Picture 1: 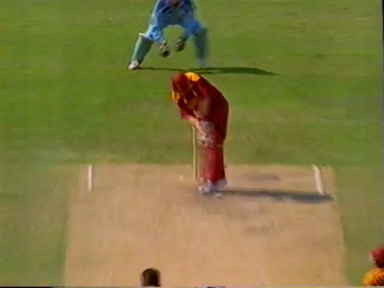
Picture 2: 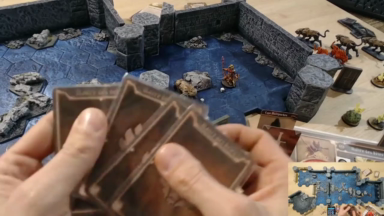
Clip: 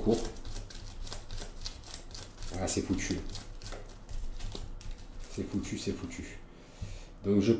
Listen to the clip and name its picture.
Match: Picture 2